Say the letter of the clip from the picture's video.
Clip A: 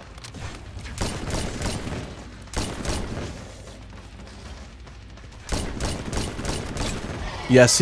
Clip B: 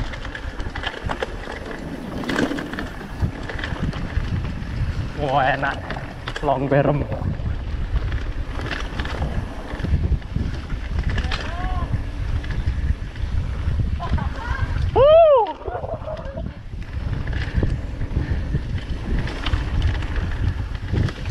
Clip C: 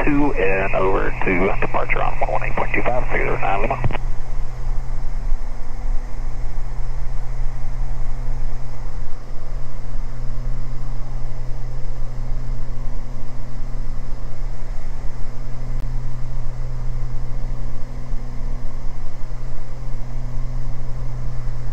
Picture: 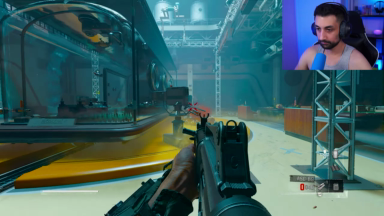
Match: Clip A